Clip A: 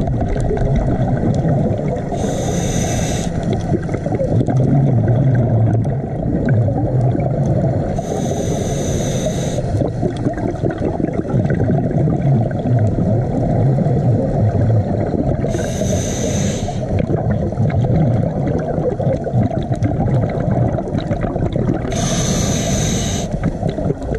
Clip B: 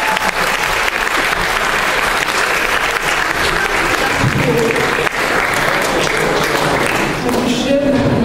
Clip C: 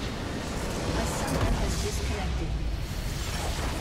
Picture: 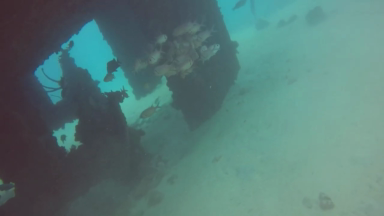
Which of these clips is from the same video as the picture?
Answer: A